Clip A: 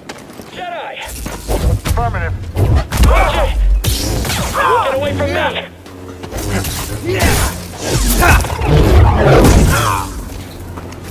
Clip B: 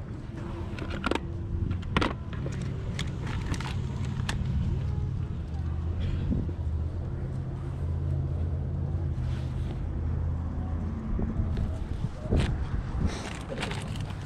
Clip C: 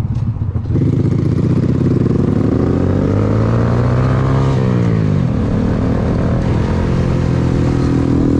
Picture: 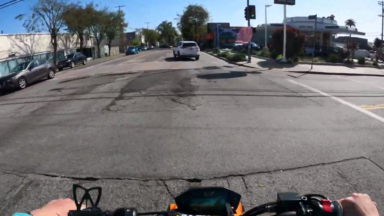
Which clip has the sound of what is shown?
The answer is C